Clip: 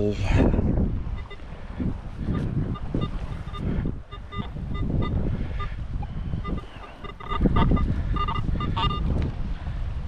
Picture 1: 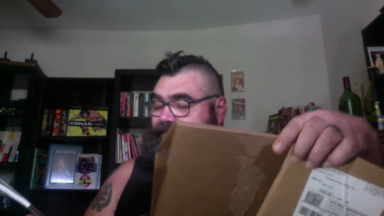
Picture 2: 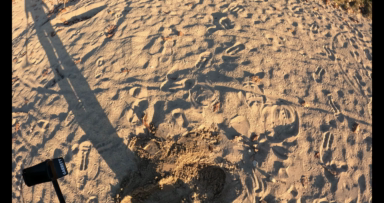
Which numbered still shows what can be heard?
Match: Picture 2